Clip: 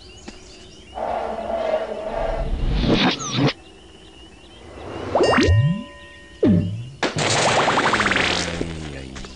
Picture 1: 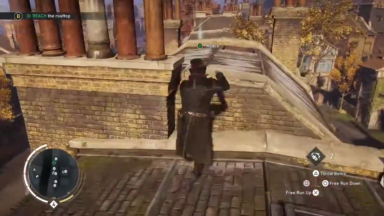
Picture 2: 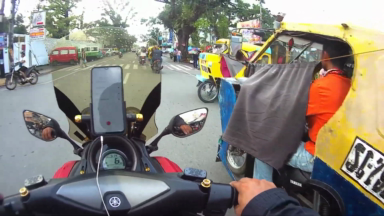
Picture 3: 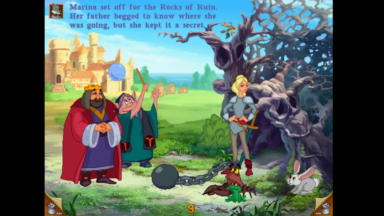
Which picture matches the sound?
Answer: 3